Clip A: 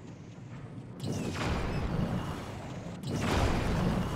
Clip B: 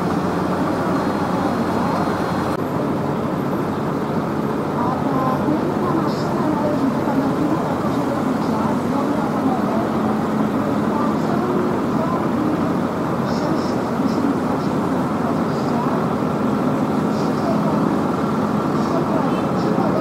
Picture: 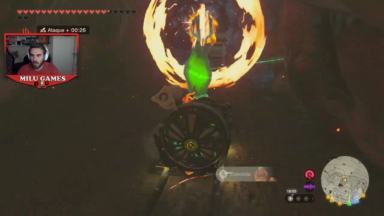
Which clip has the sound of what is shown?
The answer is A